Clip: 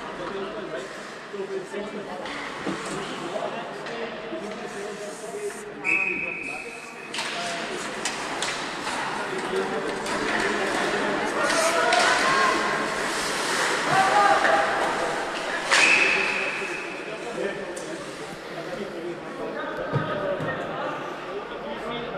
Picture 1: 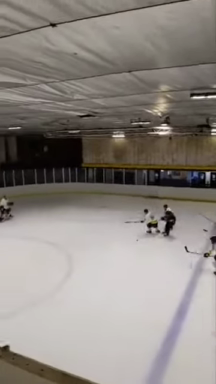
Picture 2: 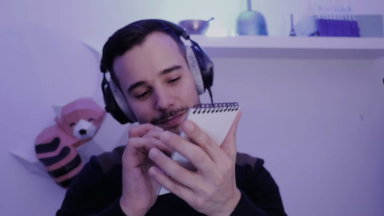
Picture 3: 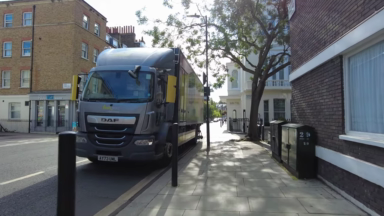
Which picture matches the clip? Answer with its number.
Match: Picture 1